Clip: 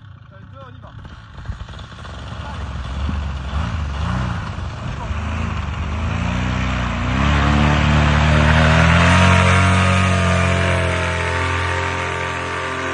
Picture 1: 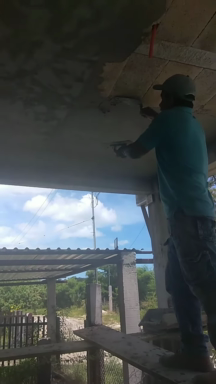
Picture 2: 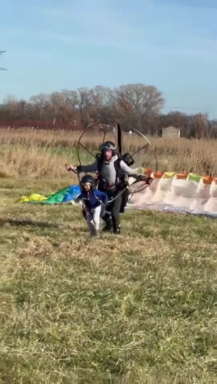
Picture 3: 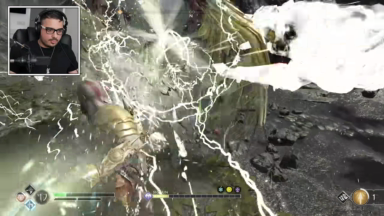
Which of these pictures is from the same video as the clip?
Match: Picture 2